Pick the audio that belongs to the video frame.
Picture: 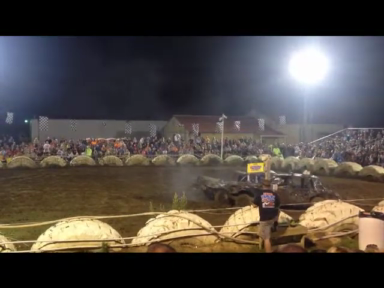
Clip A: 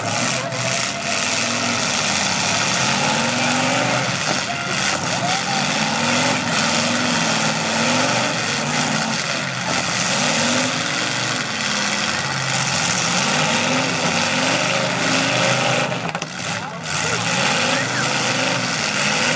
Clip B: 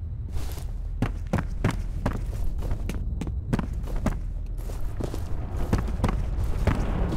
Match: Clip A